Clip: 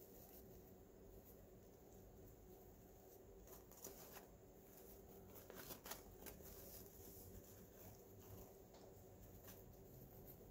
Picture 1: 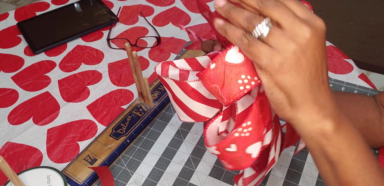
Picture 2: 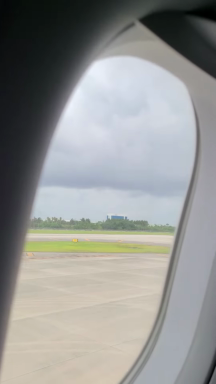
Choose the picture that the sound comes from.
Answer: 1